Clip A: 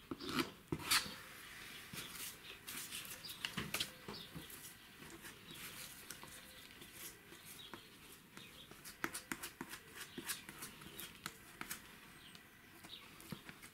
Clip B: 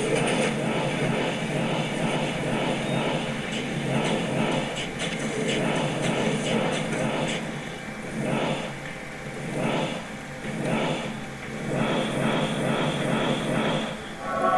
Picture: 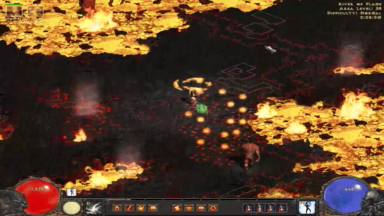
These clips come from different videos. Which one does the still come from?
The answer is B